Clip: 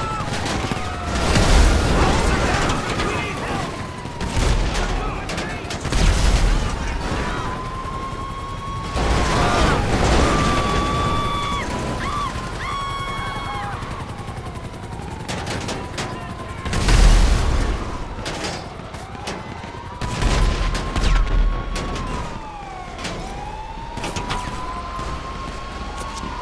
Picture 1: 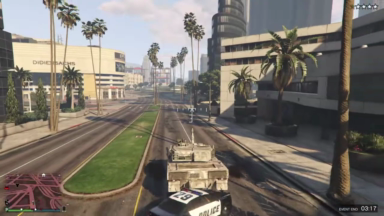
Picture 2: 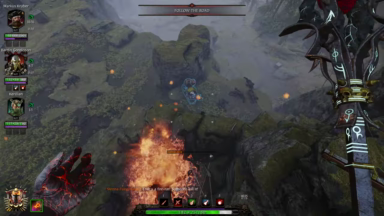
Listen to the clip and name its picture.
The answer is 1